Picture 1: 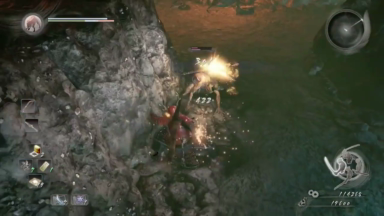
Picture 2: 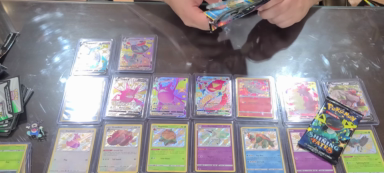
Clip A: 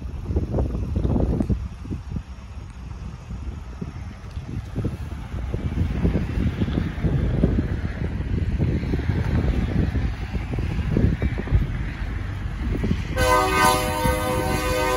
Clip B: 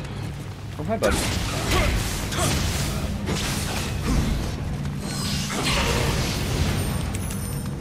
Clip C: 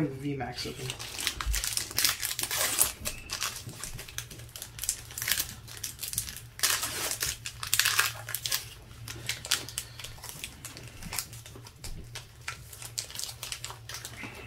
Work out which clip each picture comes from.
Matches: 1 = B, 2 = C